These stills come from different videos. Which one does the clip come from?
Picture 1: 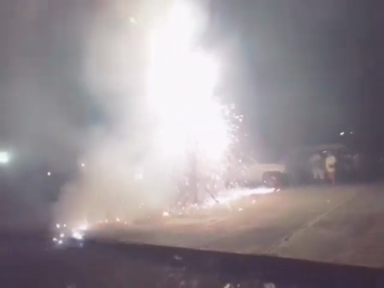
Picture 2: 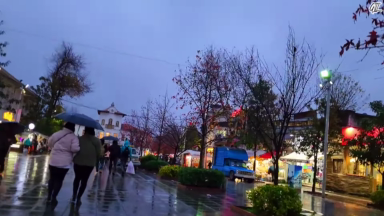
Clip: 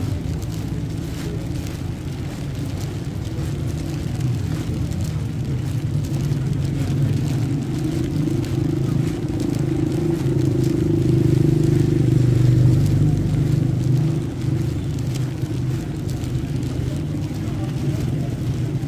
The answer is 2